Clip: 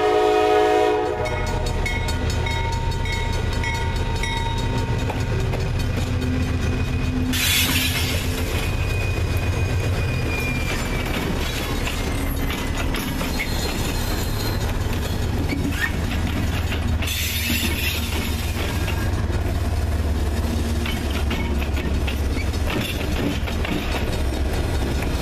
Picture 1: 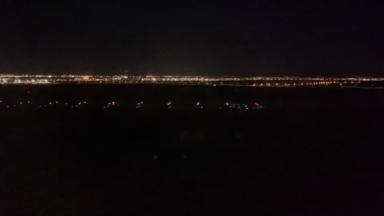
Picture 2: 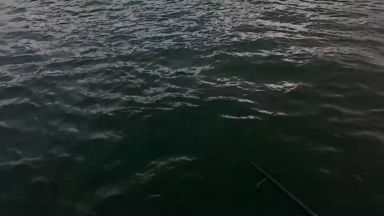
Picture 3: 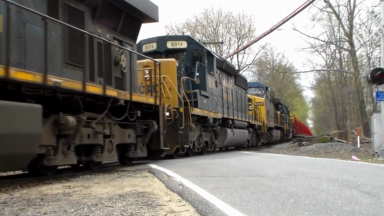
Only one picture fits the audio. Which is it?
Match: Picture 3